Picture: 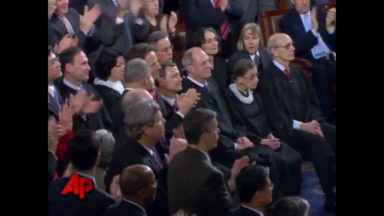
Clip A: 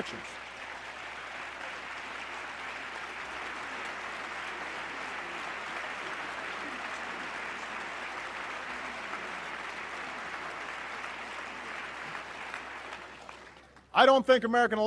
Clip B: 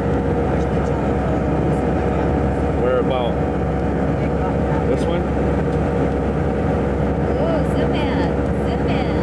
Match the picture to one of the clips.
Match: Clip A